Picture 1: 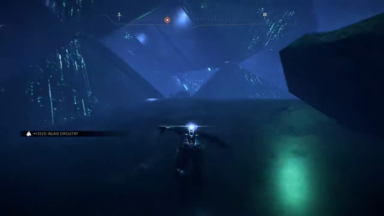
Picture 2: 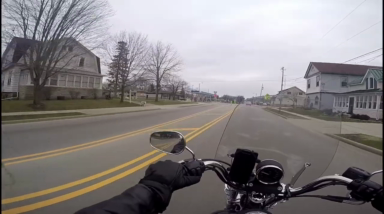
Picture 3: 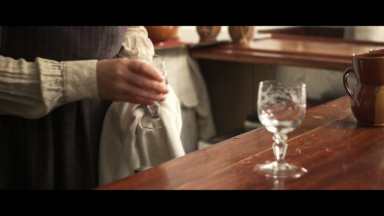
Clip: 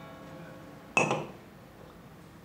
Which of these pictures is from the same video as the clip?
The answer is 3